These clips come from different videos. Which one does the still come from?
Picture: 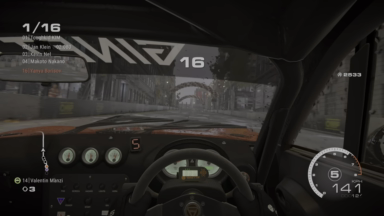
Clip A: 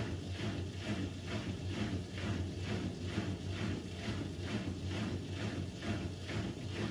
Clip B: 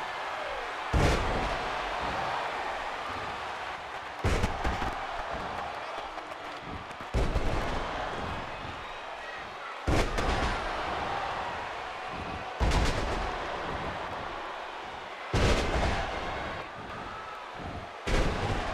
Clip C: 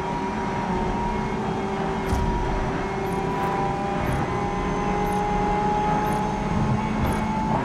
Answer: C